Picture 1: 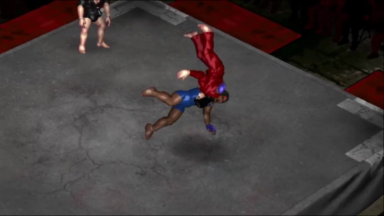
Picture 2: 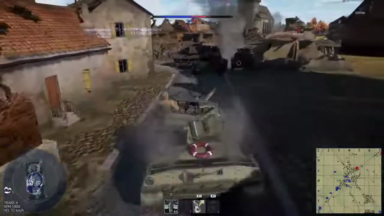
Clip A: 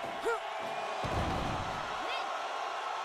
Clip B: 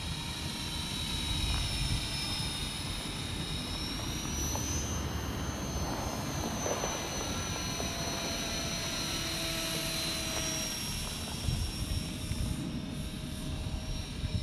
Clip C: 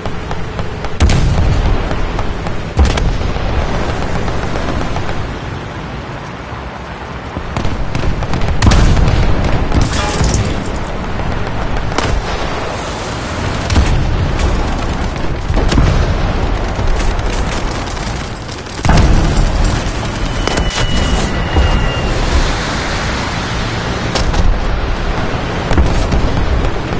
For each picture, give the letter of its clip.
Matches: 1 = A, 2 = C